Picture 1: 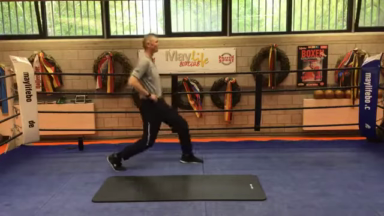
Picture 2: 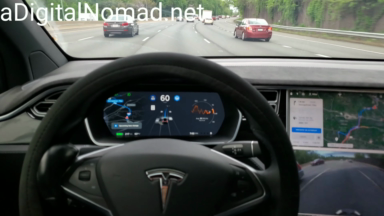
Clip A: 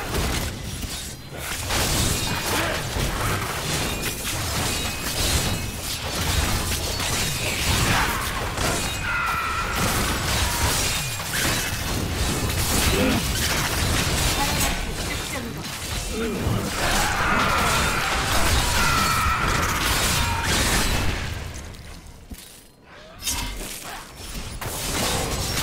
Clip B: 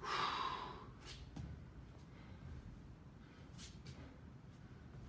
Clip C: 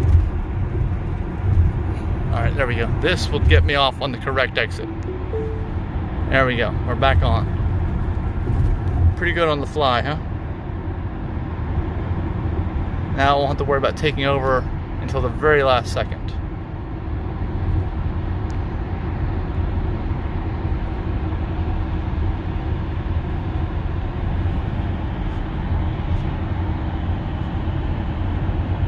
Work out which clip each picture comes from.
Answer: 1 B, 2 C